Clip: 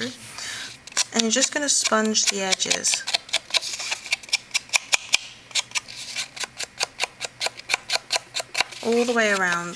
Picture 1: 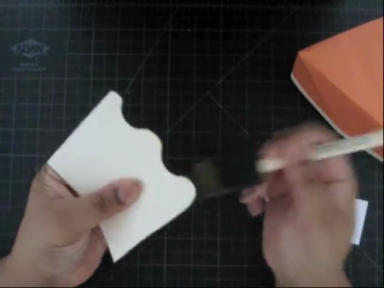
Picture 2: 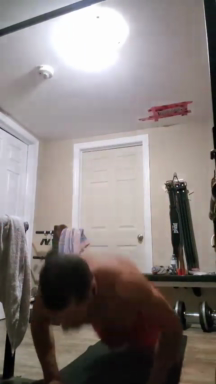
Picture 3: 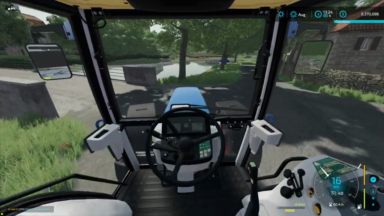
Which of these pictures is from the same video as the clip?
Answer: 1